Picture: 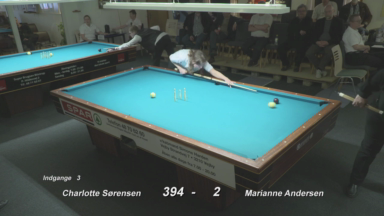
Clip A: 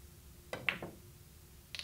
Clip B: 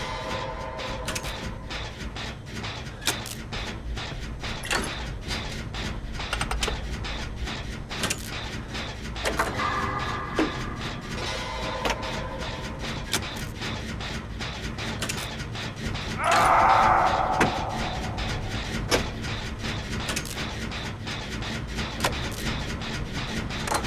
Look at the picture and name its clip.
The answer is A